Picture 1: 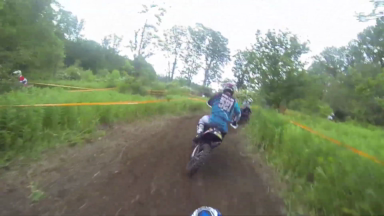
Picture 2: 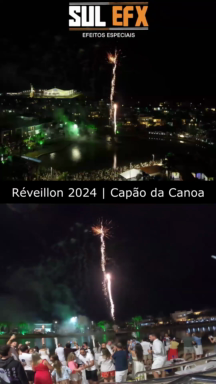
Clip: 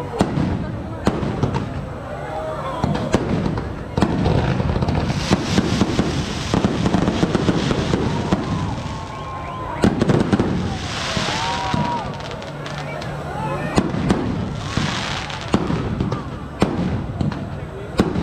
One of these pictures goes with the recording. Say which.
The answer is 2